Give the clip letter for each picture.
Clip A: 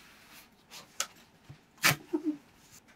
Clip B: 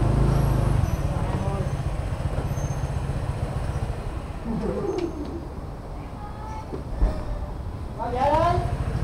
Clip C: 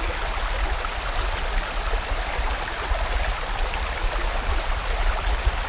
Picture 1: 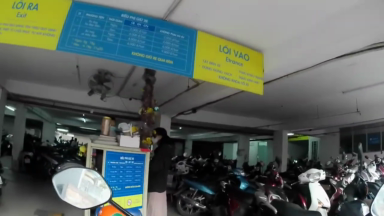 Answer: B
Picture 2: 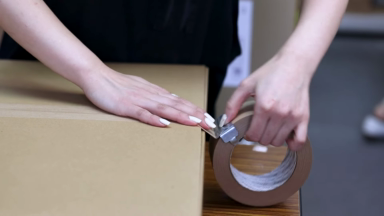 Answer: A